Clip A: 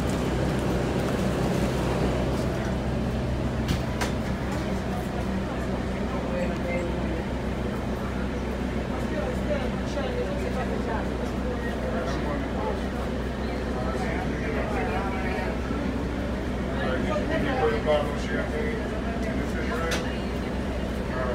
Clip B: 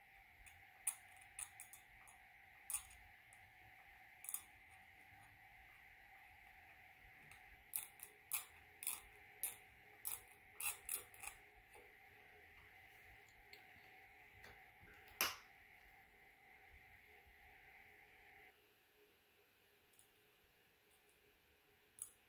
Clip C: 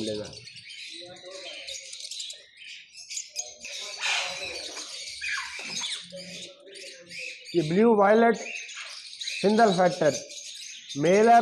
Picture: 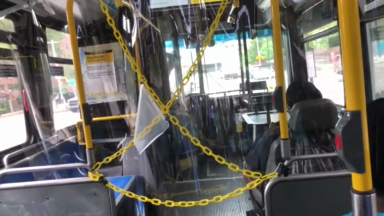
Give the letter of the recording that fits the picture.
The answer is A